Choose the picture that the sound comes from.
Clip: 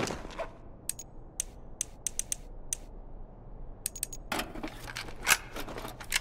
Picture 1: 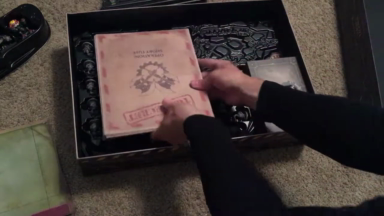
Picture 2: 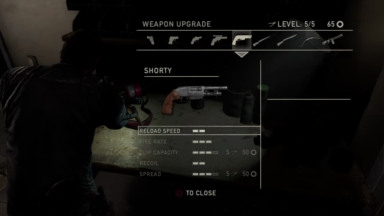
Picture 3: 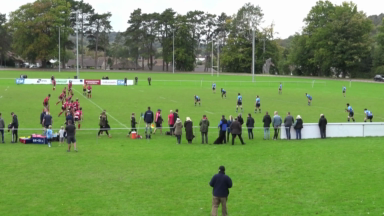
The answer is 2